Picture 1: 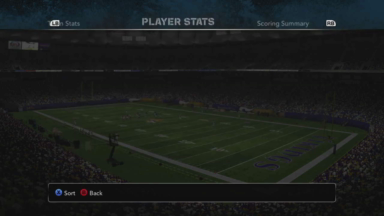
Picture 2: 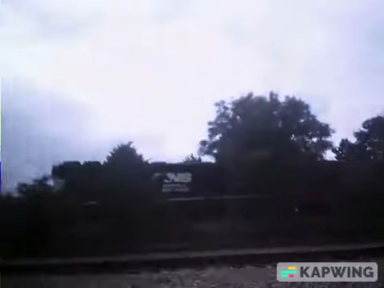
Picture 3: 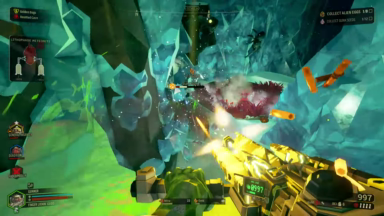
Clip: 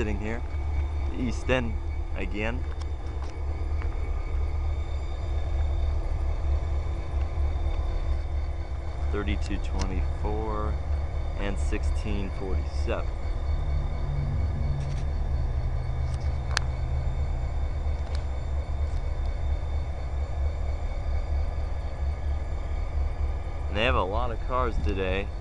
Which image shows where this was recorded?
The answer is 2